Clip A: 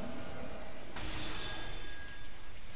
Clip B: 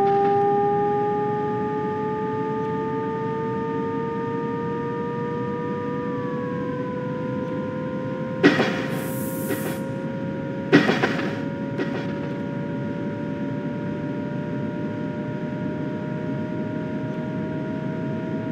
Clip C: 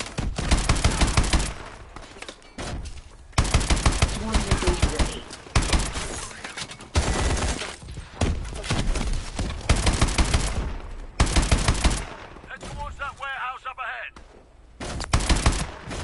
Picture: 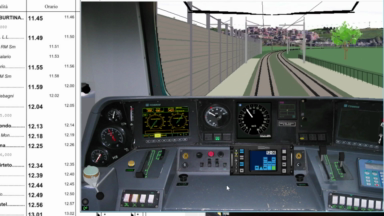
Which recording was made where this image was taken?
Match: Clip B